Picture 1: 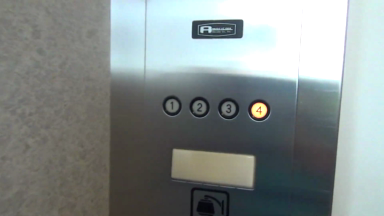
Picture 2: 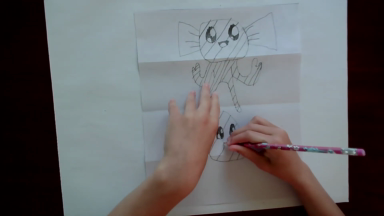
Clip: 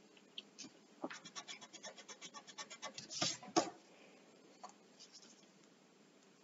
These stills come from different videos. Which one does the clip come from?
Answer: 2